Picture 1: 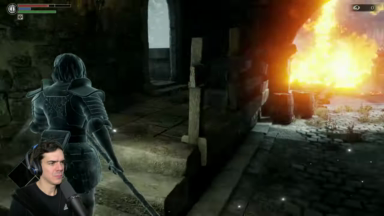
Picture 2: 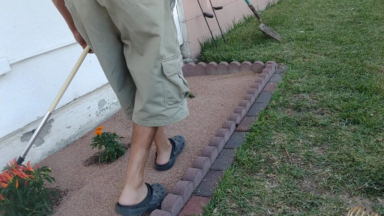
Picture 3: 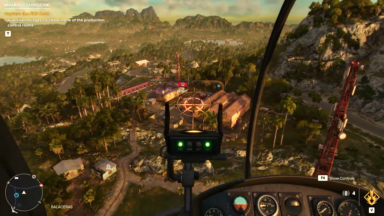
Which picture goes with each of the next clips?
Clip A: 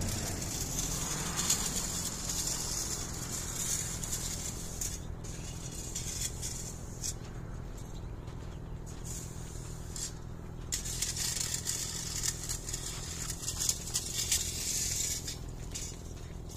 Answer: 2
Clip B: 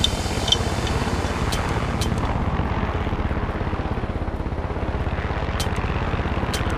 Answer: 3